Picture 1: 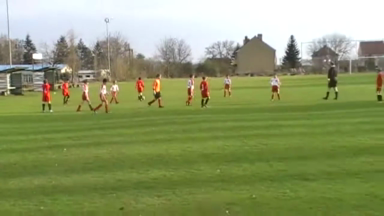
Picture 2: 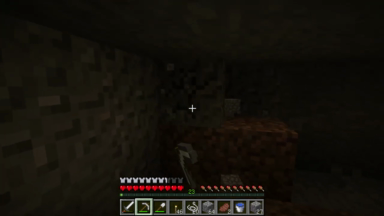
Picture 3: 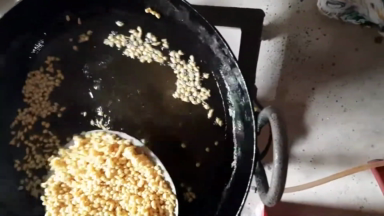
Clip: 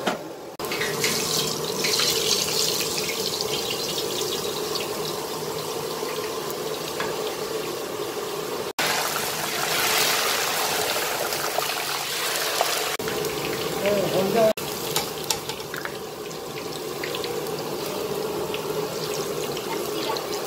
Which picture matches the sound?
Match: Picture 3